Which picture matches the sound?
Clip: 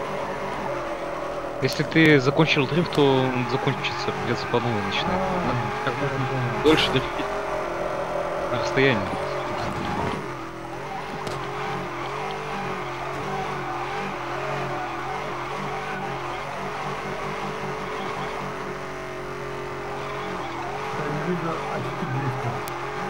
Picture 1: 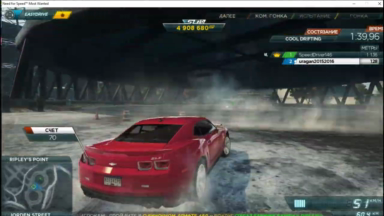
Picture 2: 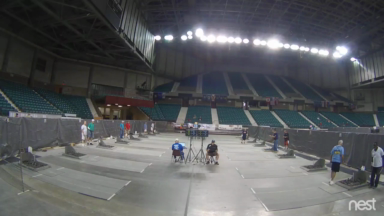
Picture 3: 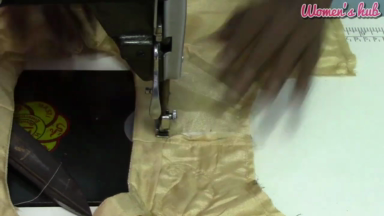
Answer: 1